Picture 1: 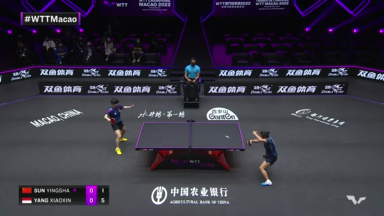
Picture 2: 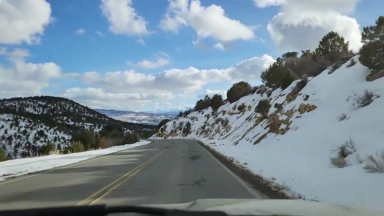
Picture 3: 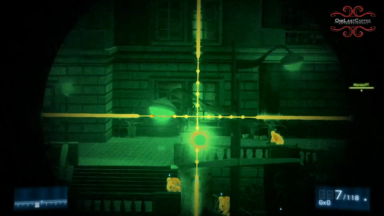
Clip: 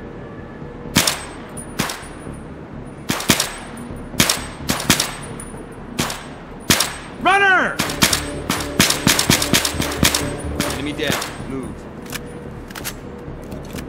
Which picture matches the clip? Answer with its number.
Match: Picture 3